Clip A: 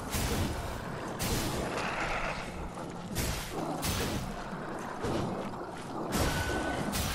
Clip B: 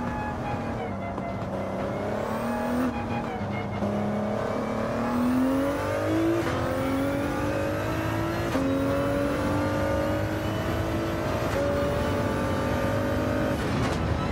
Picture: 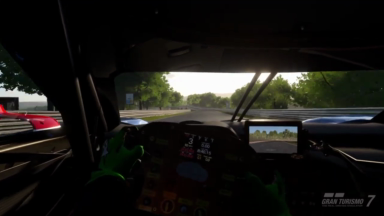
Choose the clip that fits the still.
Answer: B